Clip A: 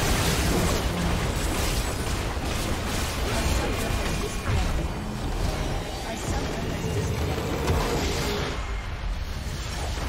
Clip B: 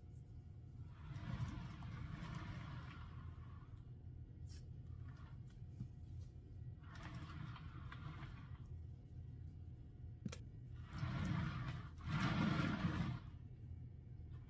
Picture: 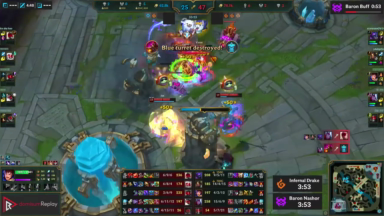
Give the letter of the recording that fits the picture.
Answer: A